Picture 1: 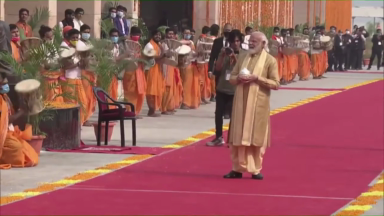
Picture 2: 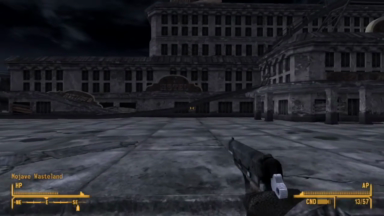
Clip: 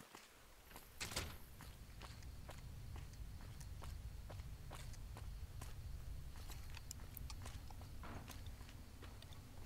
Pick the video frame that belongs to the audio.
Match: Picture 2